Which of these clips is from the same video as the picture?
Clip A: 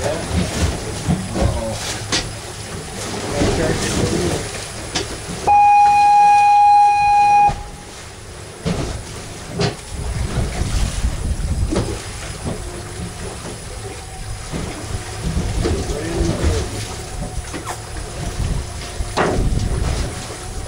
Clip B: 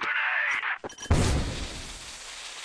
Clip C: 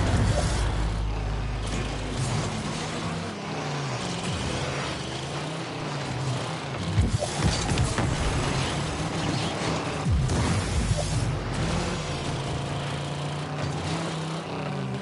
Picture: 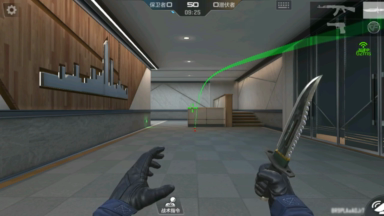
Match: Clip B